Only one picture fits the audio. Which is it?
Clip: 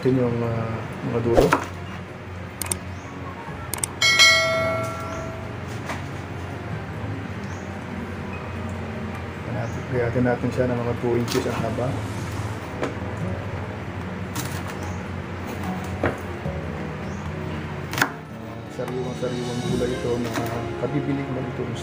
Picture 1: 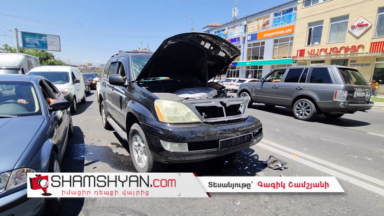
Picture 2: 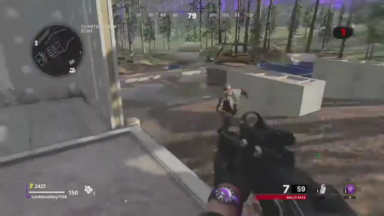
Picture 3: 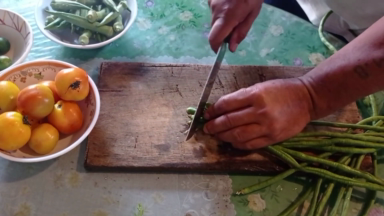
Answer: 3